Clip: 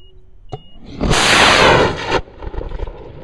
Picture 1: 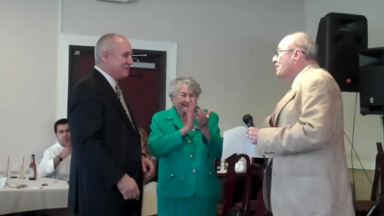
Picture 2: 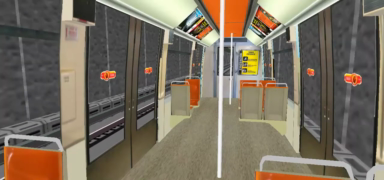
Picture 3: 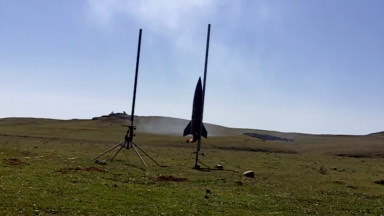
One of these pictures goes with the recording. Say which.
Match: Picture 3